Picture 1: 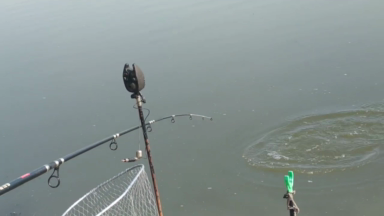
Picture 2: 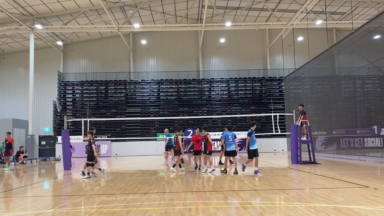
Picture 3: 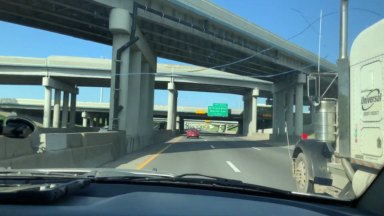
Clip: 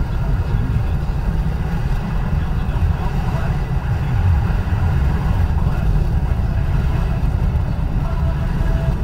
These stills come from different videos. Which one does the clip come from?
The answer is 3